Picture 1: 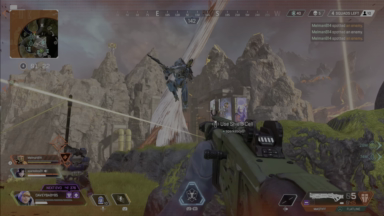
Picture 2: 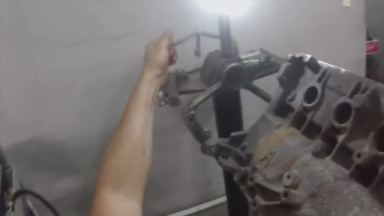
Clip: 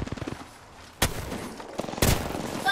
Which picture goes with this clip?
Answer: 1